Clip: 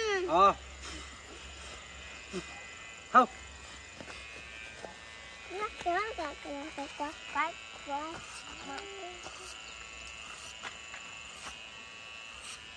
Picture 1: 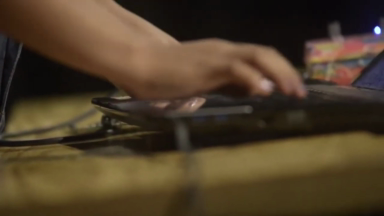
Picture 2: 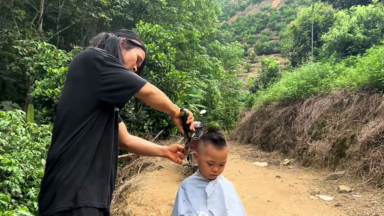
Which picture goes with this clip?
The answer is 2